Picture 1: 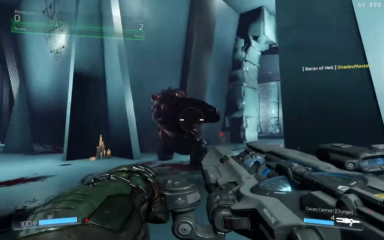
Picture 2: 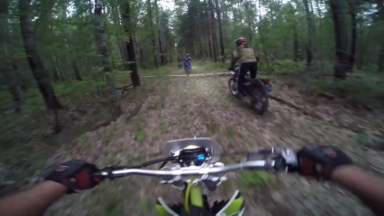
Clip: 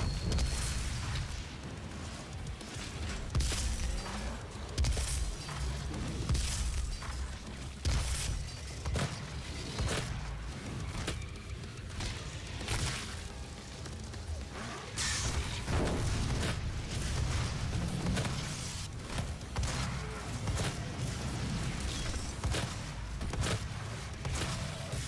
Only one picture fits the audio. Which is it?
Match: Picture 1